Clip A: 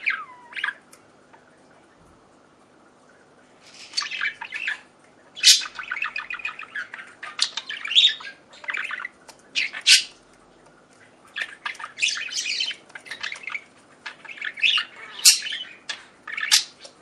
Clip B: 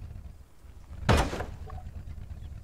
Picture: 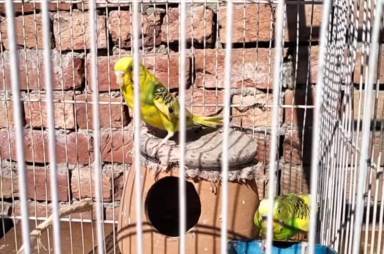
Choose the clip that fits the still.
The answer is A